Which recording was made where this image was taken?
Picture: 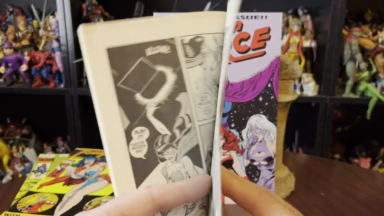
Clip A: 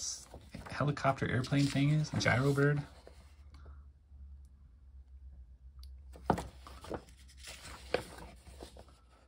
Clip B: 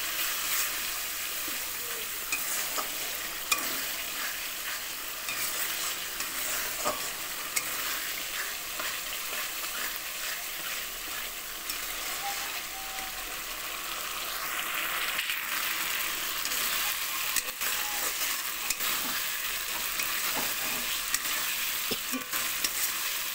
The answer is A